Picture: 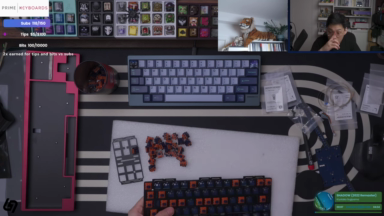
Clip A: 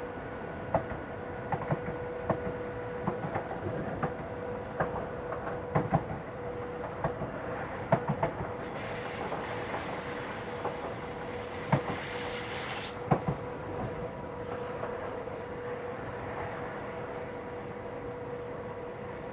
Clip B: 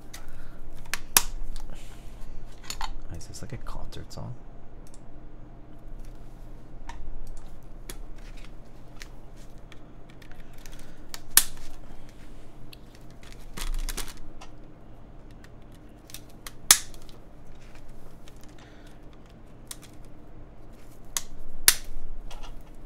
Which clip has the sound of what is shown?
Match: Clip B